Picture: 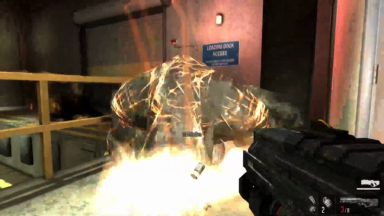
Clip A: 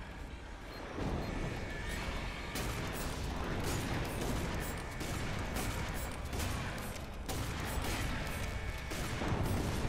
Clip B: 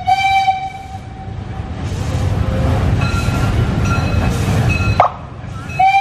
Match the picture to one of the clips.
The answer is A